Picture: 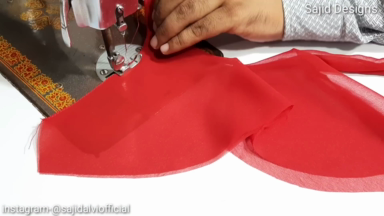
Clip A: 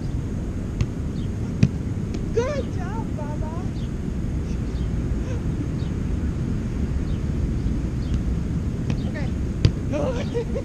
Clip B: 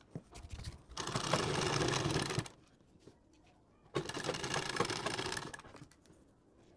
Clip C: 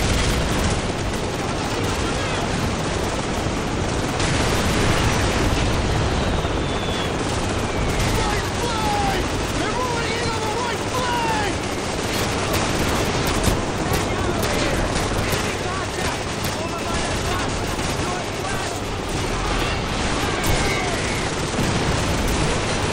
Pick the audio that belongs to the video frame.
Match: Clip B